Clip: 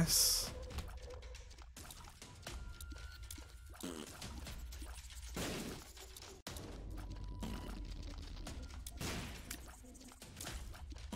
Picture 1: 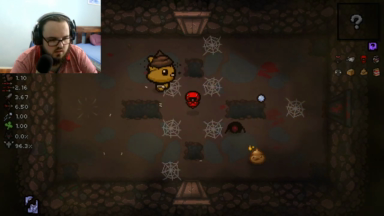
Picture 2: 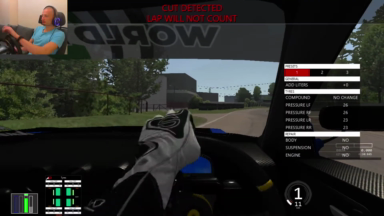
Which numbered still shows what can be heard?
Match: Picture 1